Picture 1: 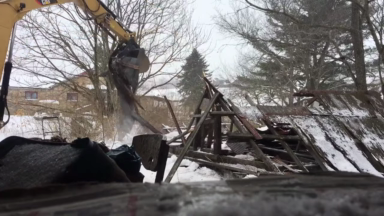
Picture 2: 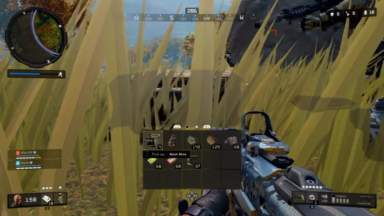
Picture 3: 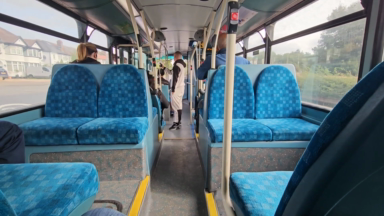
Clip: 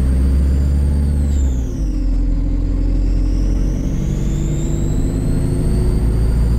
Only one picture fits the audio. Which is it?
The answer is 3